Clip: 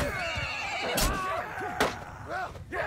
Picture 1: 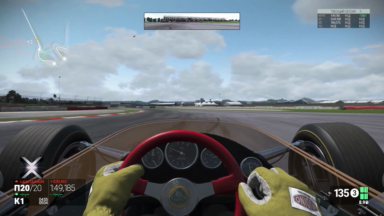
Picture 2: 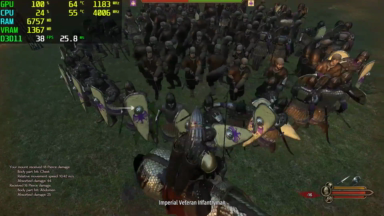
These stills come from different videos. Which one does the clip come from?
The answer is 2